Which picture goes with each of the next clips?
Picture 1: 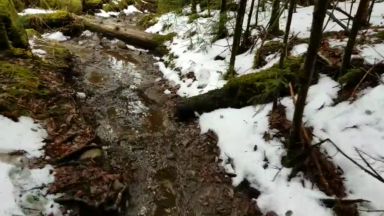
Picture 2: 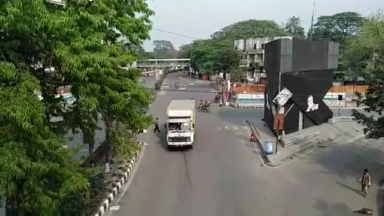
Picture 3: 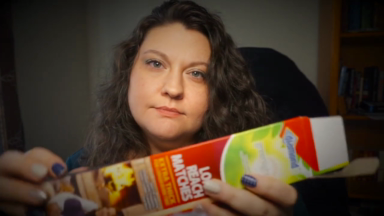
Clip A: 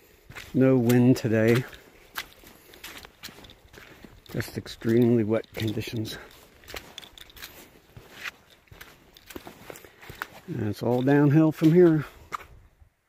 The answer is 1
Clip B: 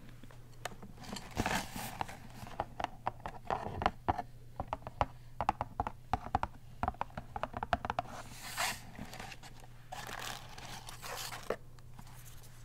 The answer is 3